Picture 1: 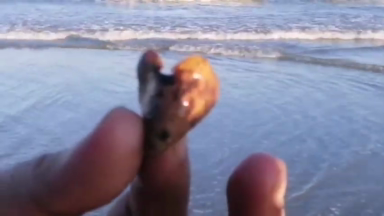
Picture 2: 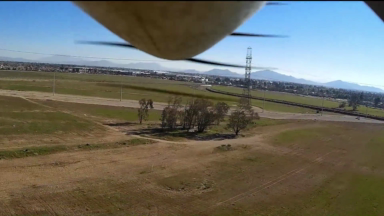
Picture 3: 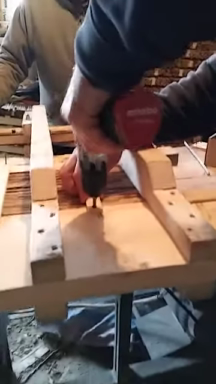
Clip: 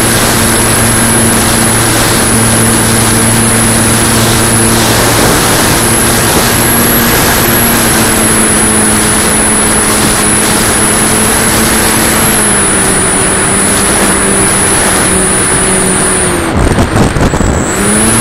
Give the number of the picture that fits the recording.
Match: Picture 2